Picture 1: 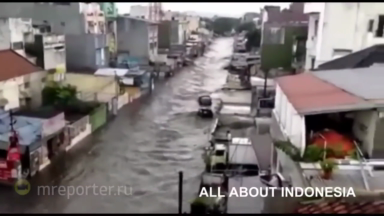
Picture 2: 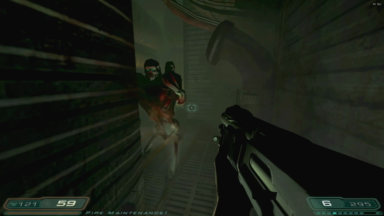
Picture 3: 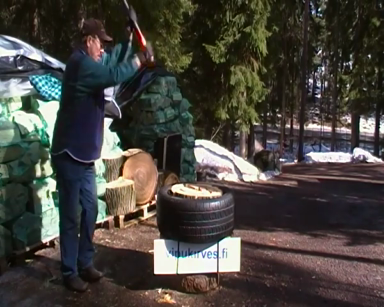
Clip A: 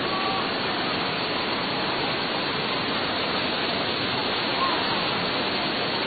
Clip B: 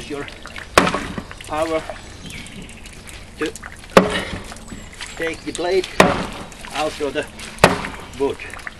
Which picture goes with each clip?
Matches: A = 1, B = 3